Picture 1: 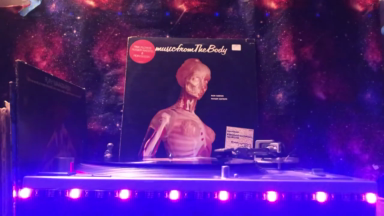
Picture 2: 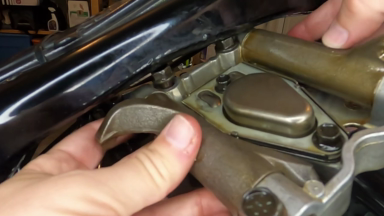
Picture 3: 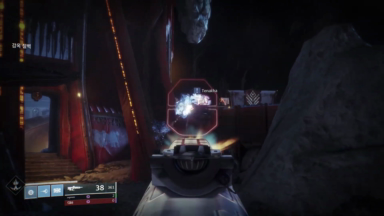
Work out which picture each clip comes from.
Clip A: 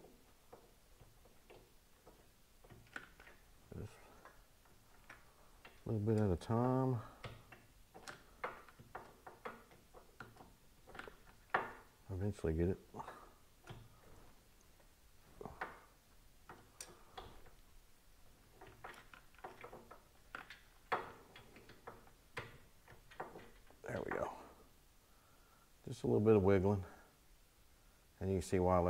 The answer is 2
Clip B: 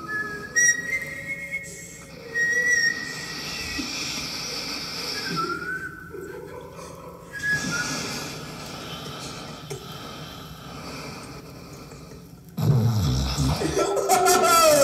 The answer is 1